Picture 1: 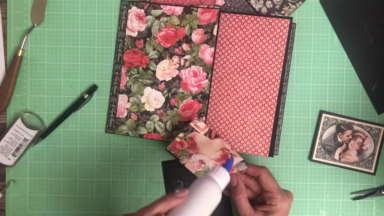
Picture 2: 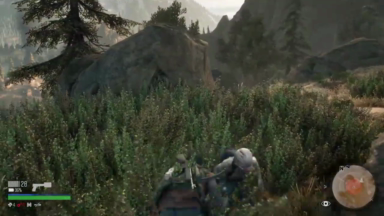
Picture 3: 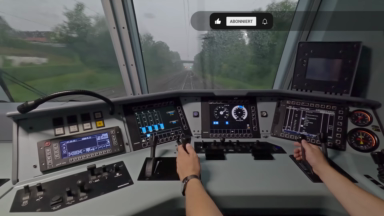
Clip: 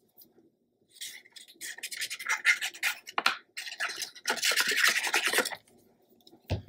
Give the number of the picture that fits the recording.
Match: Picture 1